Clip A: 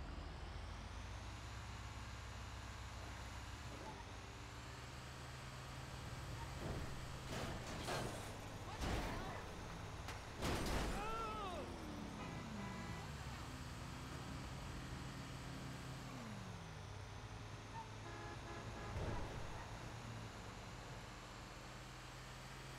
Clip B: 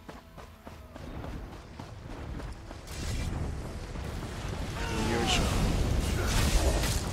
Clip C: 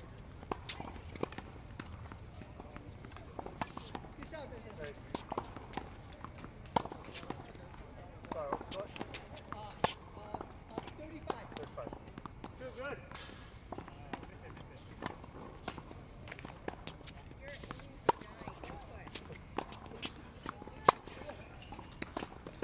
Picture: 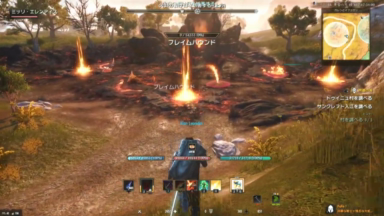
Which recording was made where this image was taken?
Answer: B